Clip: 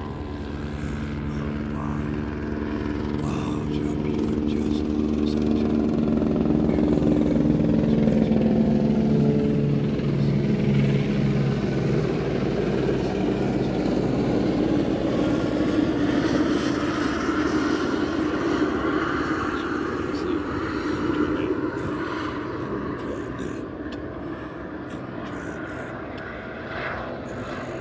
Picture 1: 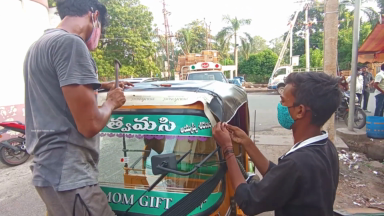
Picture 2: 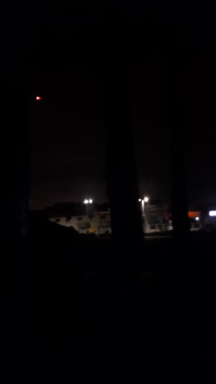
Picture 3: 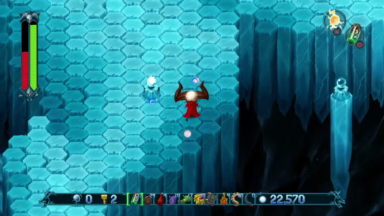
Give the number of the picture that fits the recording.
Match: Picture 2